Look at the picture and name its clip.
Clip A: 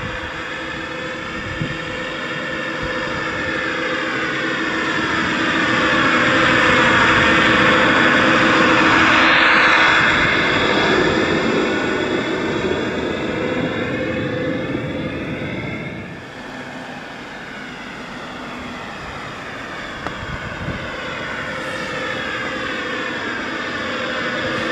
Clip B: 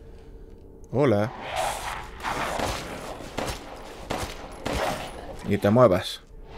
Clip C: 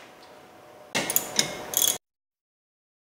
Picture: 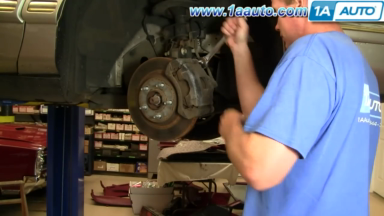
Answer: C